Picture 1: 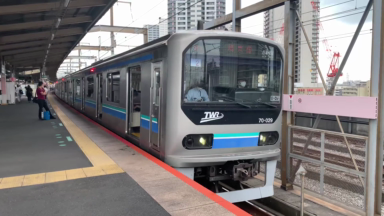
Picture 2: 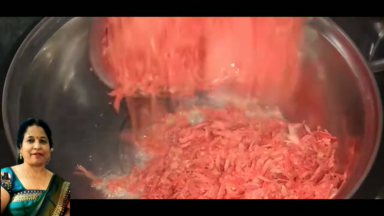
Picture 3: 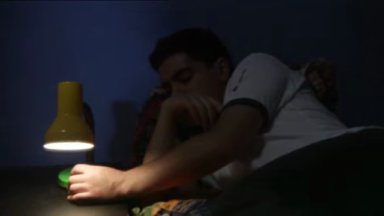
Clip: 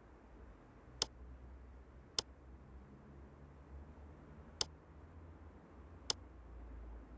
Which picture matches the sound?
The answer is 3